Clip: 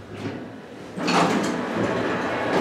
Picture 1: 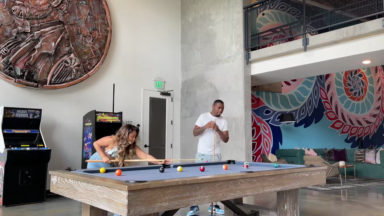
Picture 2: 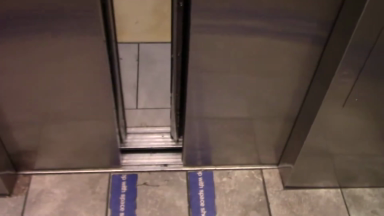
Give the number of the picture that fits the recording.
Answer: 2